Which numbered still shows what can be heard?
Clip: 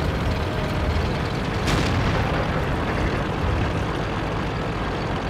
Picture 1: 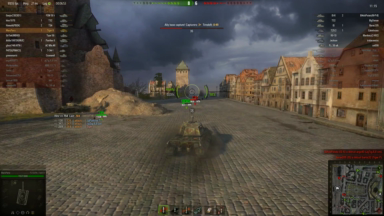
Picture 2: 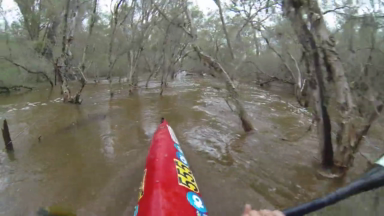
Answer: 1